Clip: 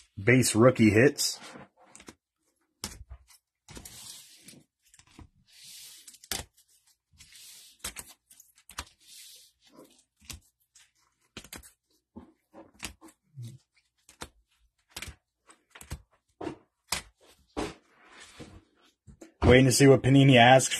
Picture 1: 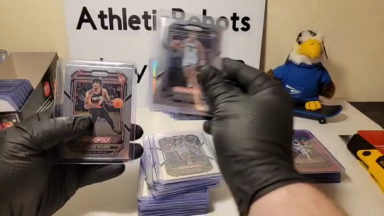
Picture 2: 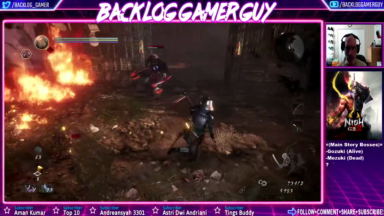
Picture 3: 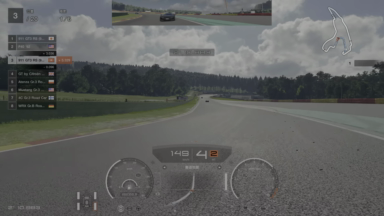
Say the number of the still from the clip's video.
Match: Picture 1